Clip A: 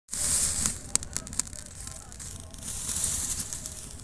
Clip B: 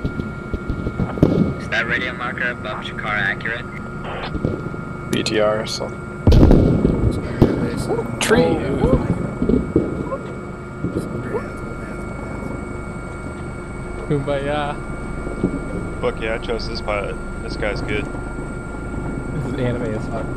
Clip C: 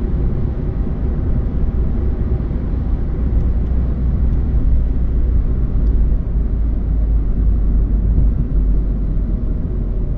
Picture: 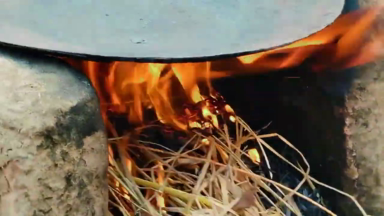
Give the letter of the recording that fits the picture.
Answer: A